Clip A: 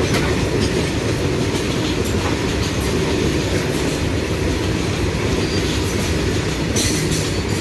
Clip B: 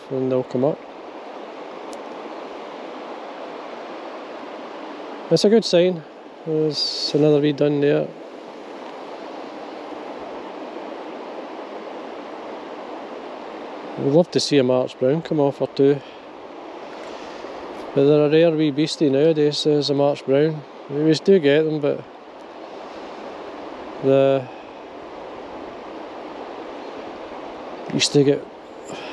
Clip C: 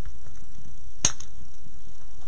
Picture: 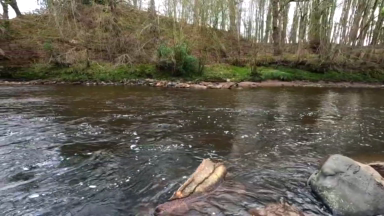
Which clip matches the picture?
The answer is B